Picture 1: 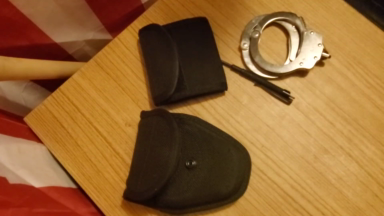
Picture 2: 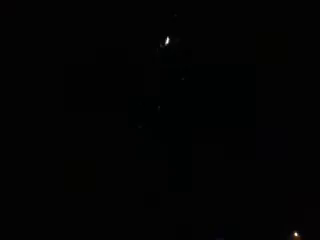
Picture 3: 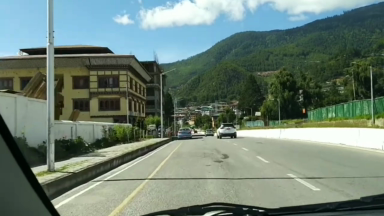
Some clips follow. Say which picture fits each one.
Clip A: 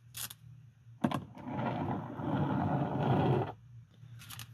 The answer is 1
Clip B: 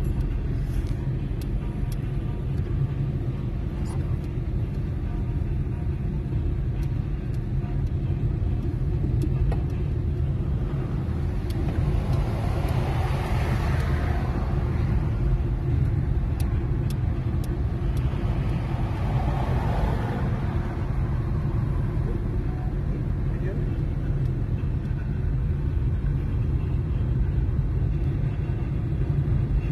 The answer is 3